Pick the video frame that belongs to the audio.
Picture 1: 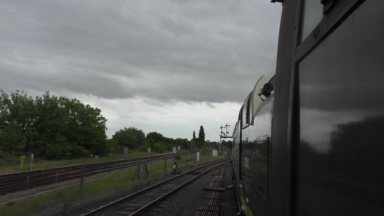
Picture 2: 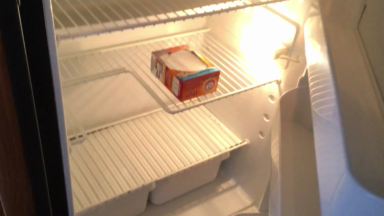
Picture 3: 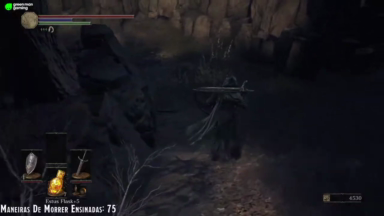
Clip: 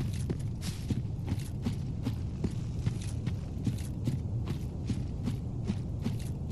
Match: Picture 3